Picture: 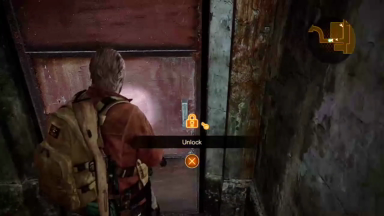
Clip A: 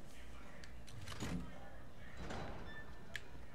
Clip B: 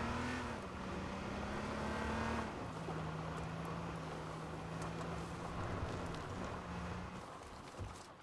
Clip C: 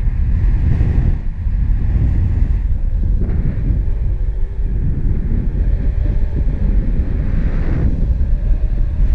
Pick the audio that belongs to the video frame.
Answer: A